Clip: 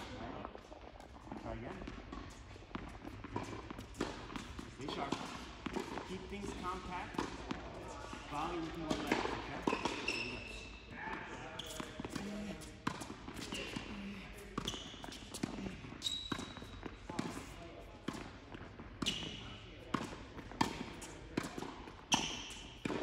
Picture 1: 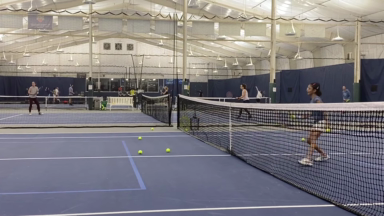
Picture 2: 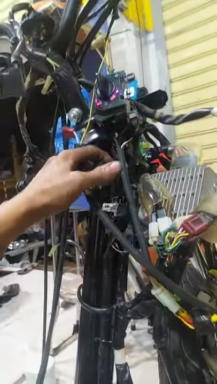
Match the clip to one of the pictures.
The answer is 1